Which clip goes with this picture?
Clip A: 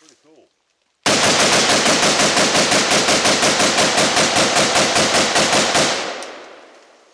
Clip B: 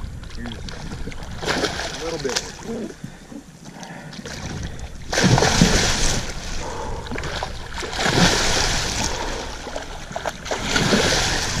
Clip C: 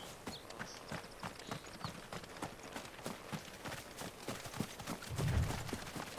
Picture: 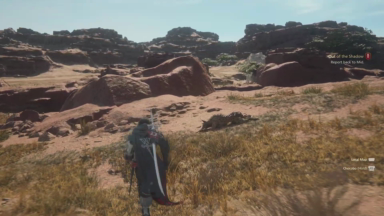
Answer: C